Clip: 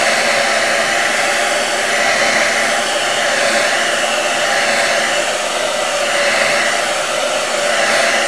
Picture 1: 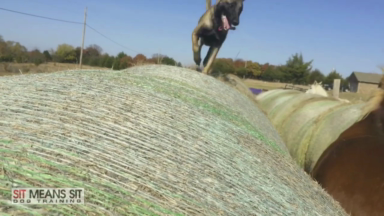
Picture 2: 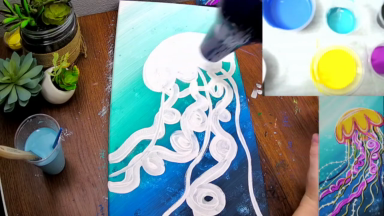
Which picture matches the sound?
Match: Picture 2